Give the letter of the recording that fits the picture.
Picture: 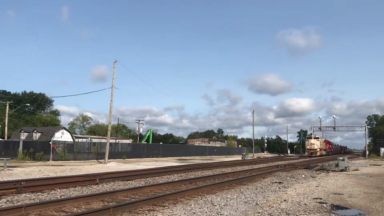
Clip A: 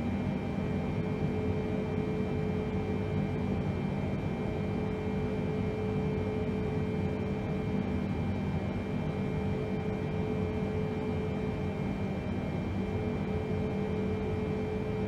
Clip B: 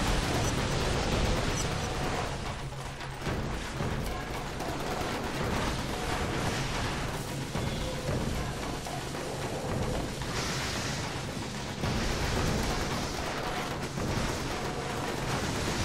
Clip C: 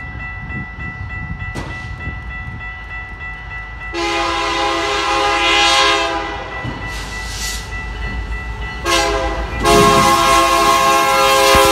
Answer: C